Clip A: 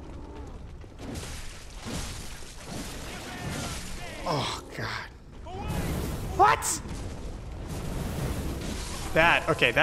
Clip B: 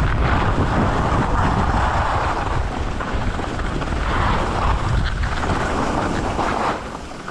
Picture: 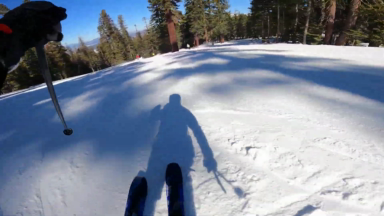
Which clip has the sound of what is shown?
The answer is B